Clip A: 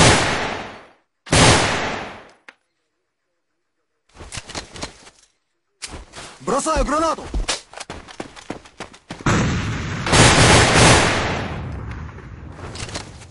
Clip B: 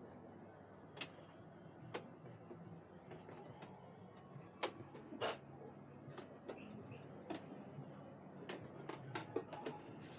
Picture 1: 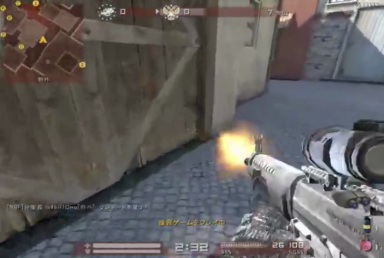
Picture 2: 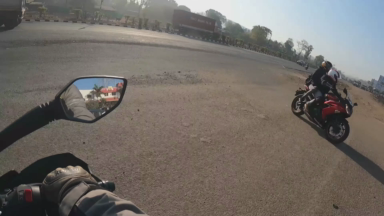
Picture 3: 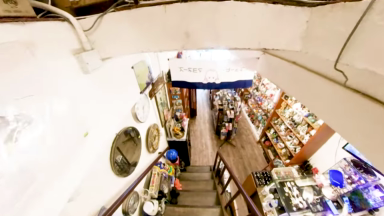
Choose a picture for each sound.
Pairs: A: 1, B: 3